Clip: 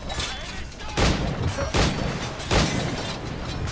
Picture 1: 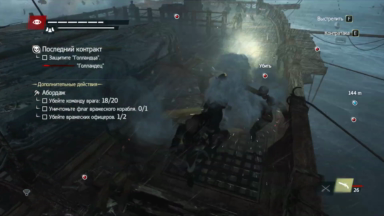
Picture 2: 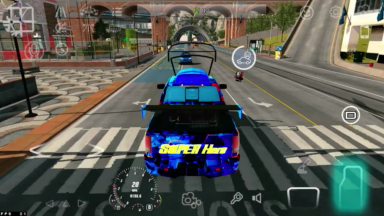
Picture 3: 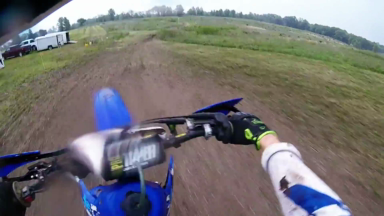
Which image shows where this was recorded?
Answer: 1